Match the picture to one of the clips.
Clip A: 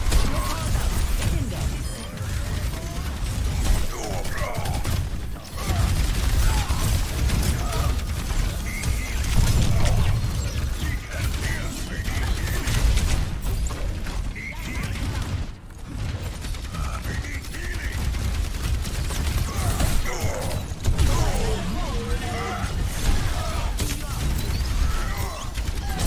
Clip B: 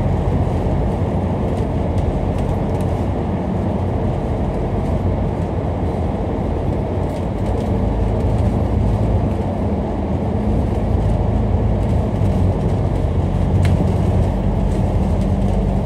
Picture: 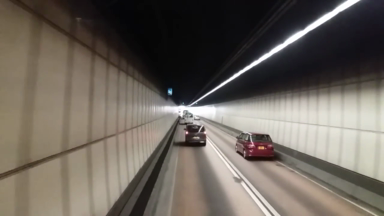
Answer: B